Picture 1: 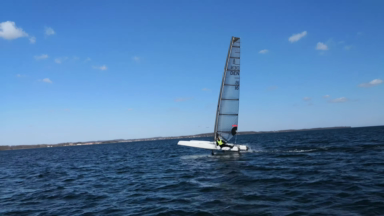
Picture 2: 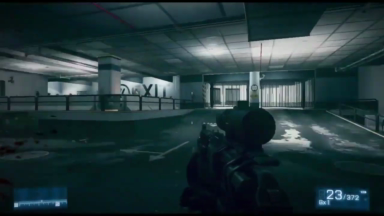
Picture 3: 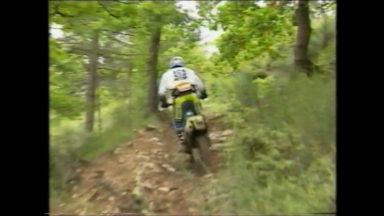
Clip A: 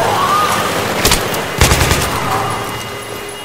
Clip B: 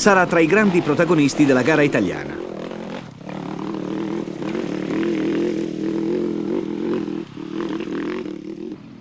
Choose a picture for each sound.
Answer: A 2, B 3